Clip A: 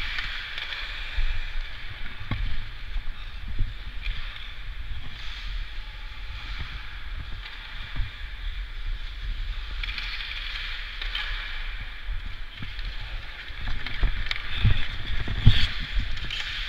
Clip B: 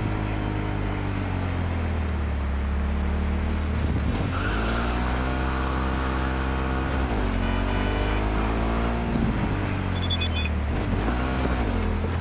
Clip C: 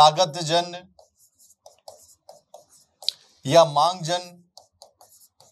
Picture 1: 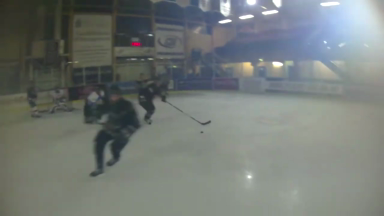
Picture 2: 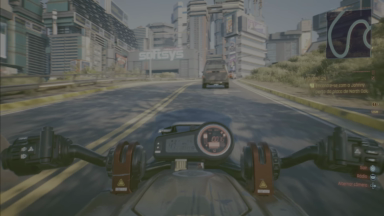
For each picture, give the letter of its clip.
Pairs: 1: A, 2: B